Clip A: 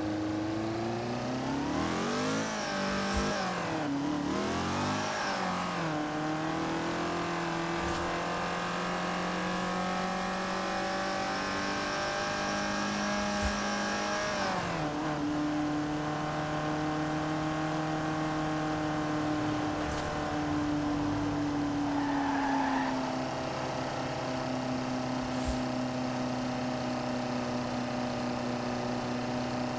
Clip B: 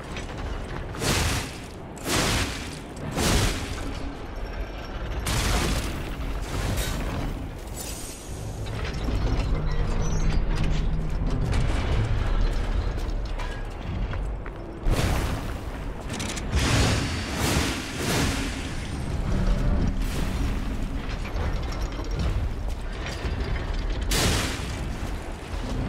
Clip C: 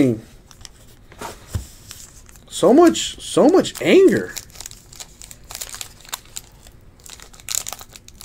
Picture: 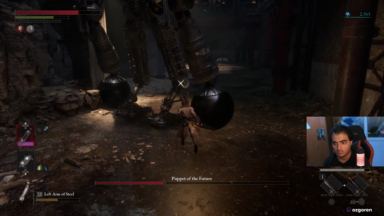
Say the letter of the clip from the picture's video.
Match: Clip B